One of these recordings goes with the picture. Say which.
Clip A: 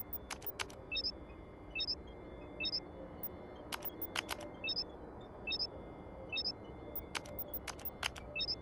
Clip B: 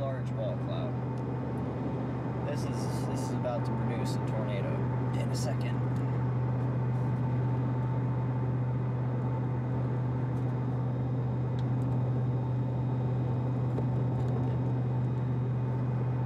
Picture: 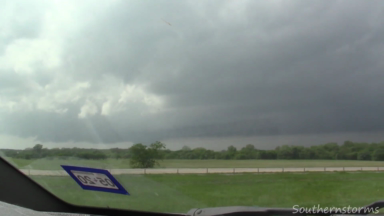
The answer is B